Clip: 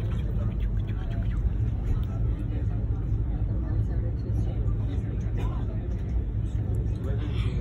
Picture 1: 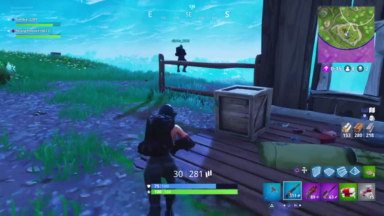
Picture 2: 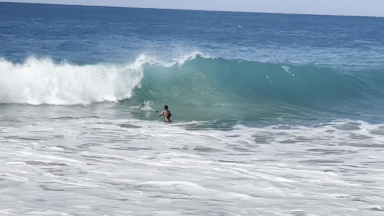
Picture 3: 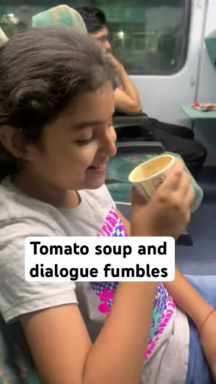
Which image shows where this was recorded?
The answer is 3